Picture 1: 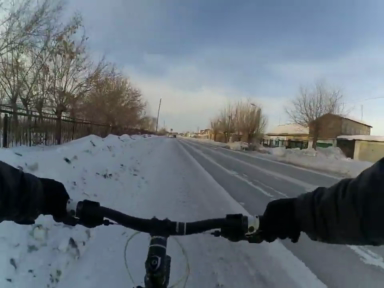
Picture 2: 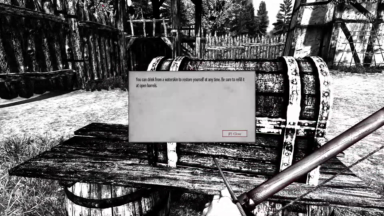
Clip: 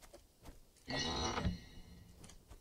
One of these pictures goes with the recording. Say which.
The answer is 2